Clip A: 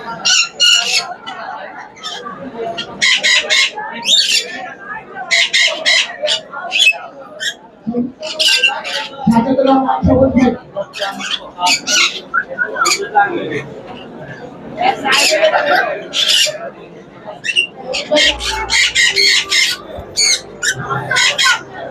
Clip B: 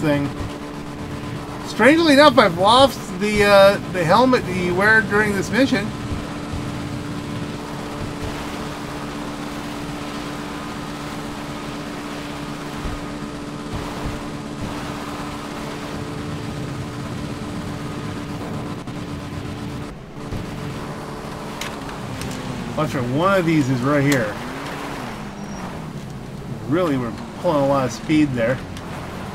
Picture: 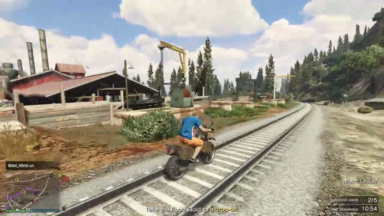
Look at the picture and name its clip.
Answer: B